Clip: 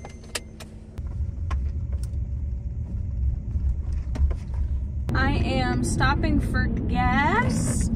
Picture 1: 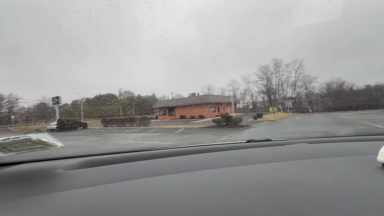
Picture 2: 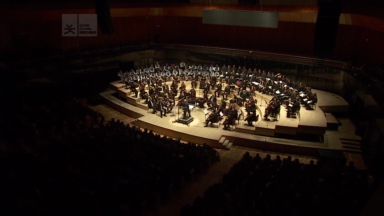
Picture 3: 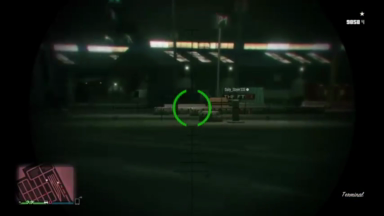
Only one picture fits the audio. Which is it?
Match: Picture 1